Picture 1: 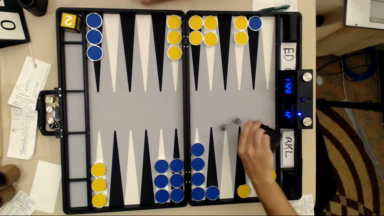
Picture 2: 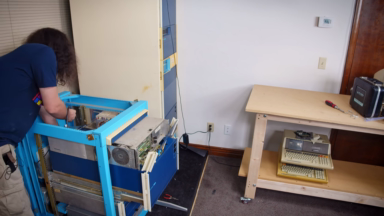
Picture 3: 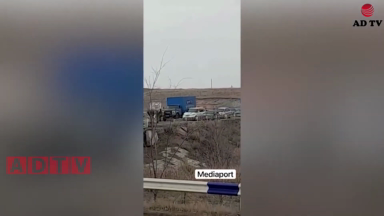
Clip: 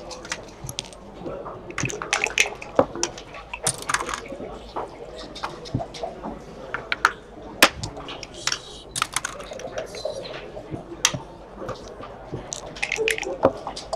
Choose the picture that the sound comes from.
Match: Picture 1